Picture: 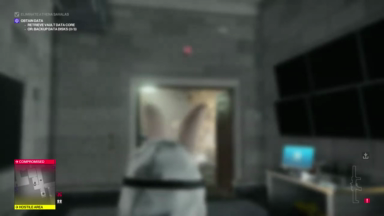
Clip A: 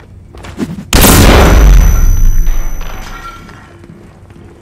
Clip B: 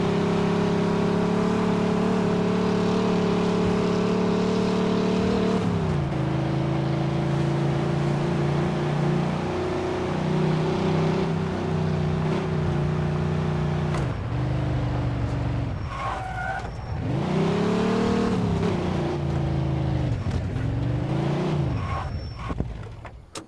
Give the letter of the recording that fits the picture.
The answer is A